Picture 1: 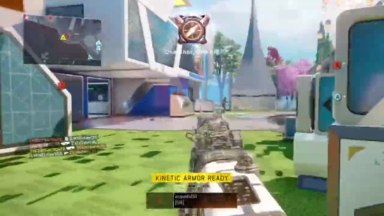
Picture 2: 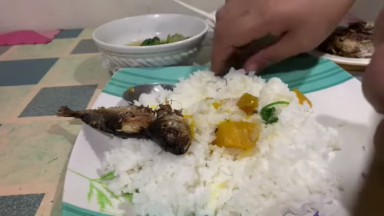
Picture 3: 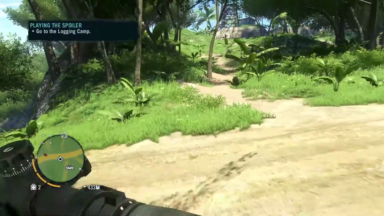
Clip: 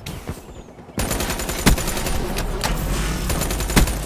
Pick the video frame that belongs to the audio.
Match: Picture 1